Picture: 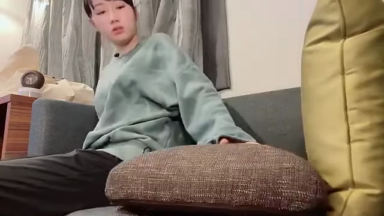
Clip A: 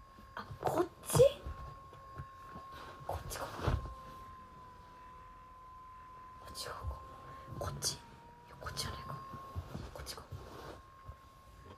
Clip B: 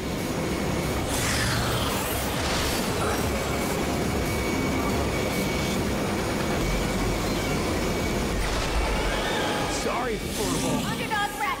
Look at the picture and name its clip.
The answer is A